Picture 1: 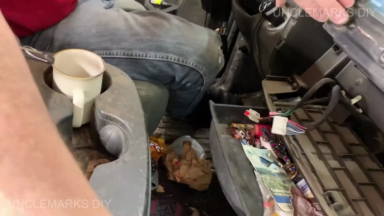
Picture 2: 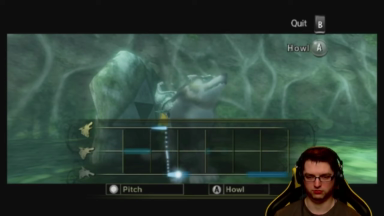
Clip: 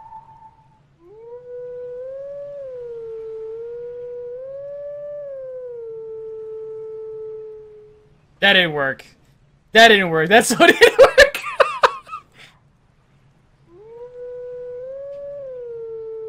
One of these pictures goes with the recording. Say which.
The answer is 2